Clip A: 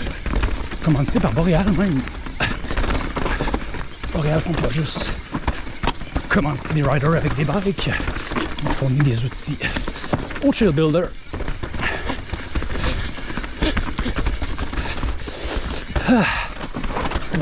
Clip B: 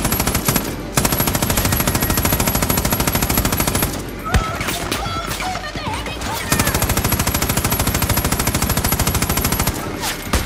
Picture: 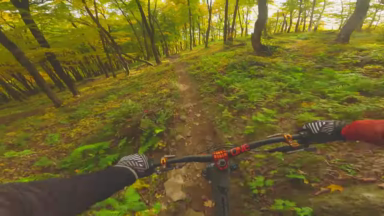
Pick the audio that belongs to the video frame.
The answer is A